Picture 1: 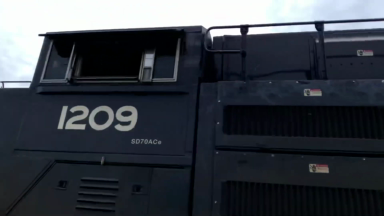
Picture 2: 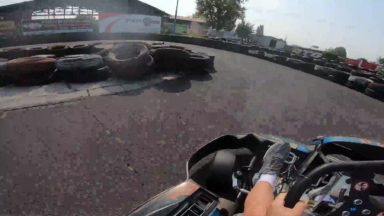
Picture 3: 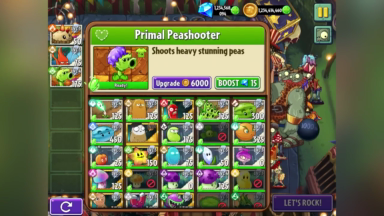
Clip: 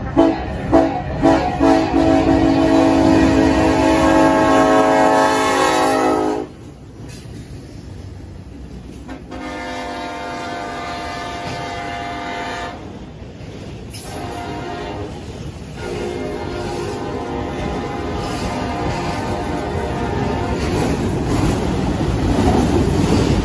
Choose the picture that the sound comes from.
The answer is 1